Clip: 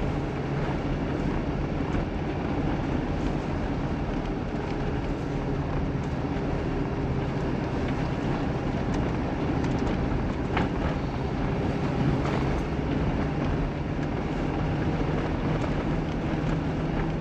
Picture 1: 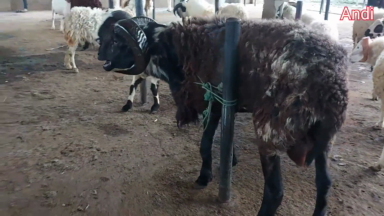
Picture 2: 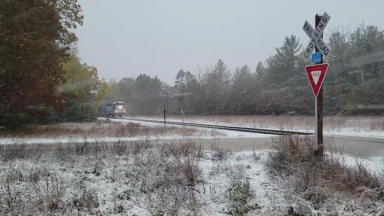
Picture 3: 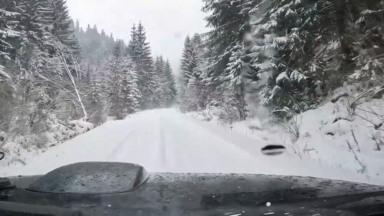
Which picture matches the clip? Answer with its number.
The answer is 3